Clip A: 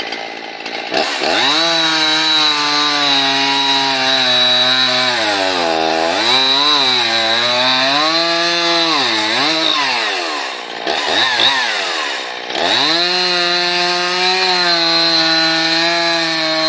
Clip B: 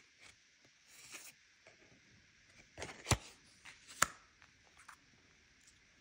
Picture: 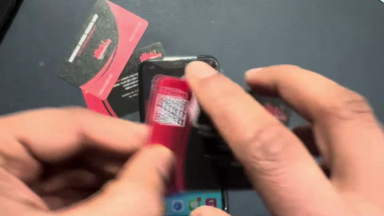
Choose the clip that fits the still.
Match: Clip B